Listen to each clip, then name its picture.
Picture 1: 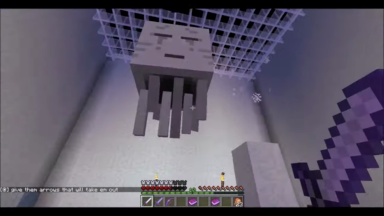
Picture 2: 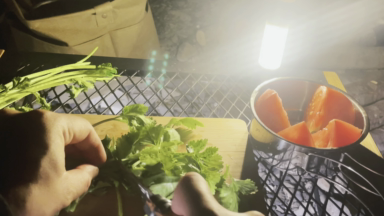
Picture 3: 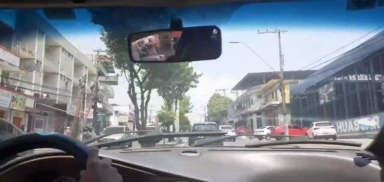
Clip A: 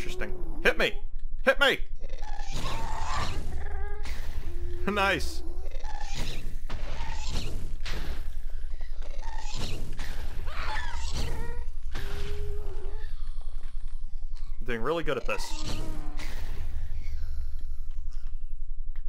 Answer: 1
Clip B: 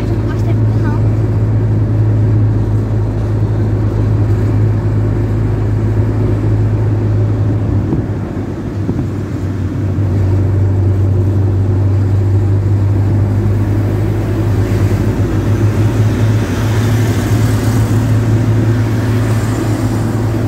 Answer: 3